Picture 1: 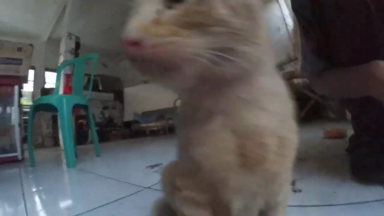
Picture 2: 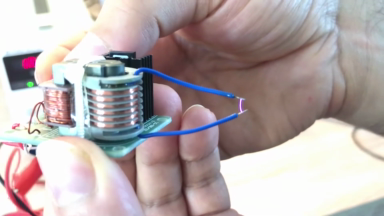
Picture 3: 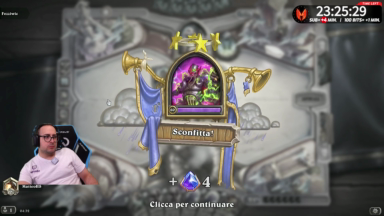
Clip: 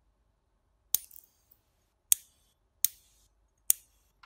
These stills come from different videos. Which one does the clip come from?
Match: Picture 2